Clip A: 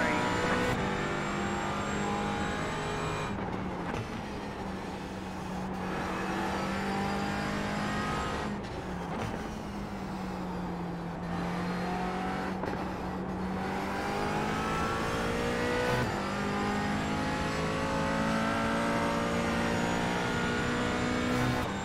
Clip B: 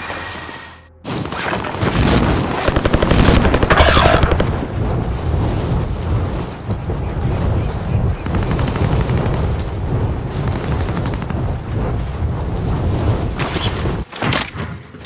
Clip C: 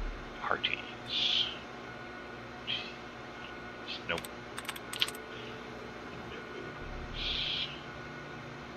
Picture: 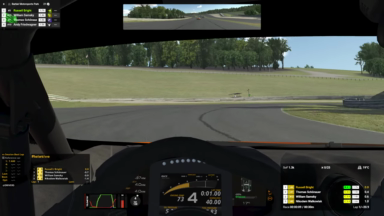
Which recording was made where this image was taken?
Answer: A